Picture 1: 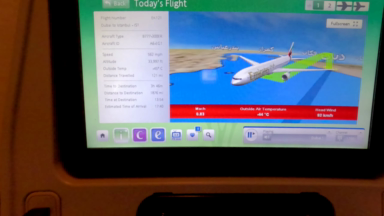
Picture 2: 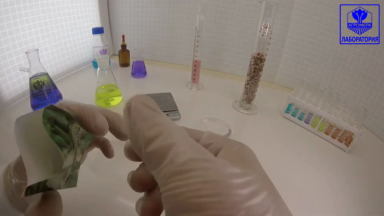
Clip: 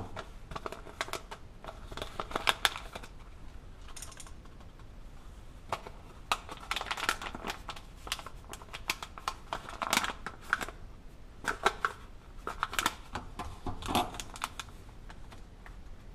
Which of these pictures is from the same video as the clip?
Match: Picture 2